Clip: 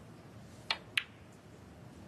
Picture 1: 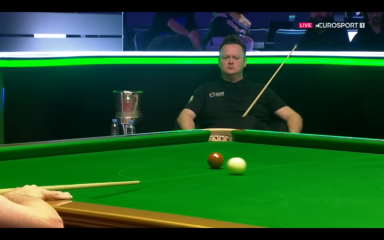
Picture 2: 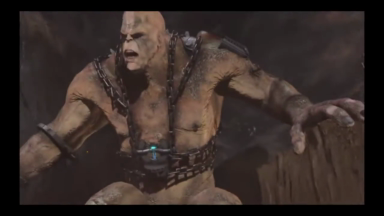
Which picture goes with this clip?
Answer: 1